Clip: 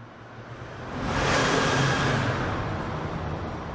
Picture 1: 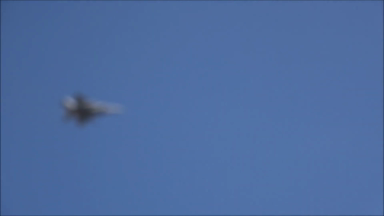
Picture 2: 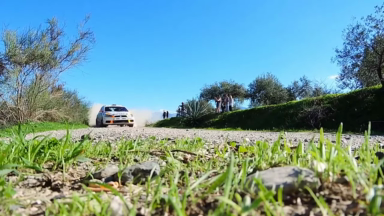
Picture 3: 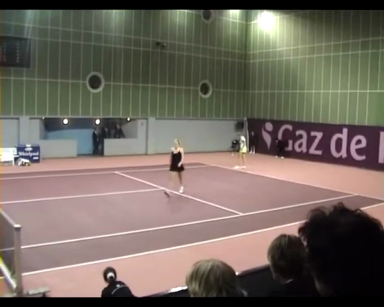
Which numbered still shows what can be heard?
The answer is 2